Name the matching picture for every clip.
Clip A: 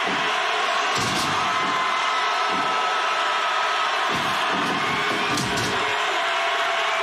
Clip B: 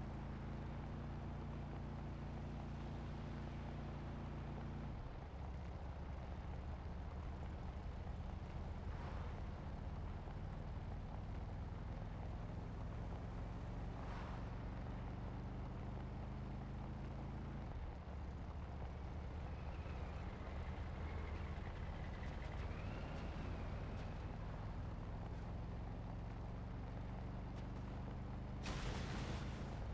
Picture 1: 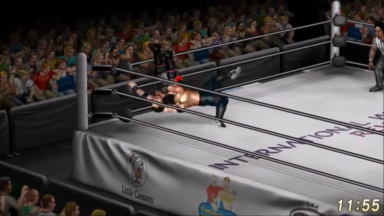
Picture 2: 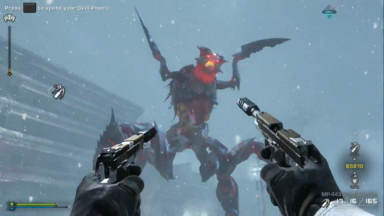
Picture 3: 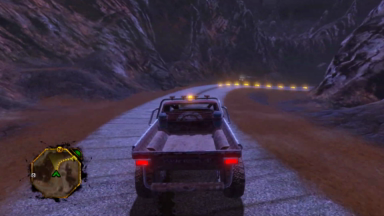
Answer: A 1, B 3